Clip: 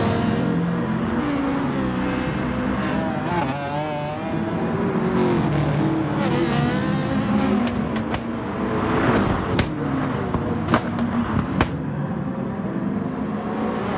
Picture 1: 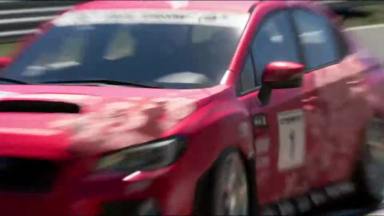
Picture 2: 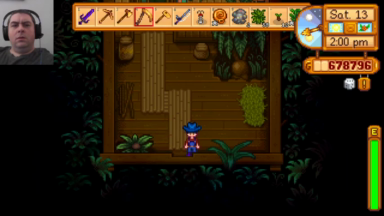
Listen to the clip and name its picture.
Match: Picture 1